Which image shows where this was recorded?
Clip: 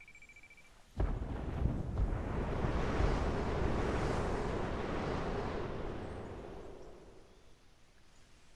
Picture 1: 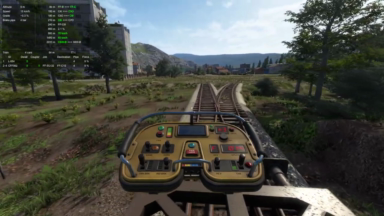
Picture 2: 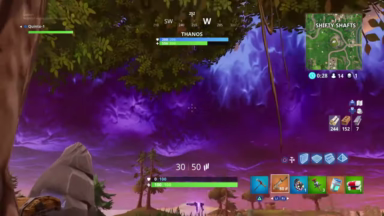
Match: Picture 2